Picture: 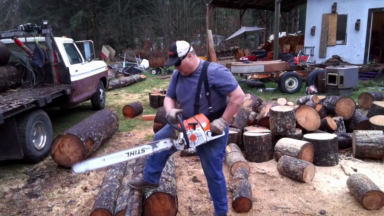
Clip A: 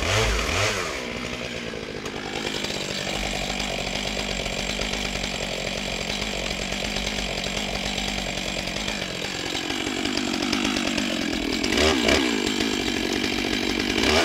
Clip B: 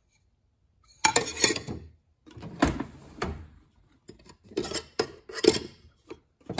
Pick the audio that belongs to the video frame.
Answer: A